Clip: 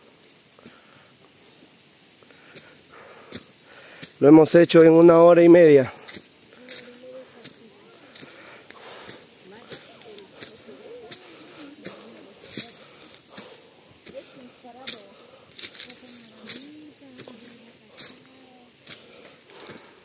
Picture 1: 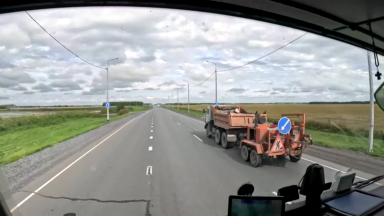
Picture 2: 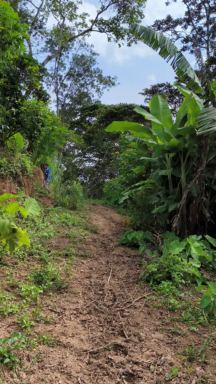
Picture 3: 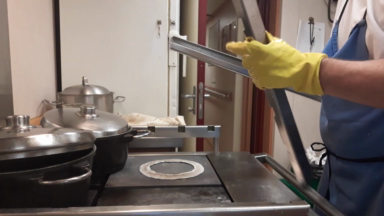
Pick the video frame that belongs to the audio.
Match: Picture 2